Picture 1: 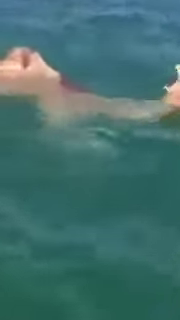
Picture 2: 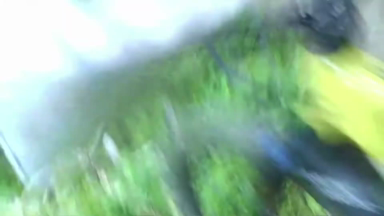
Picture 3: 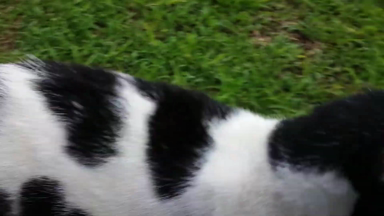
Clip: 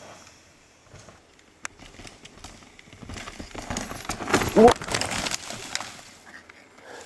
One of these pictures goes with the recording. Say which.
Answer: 2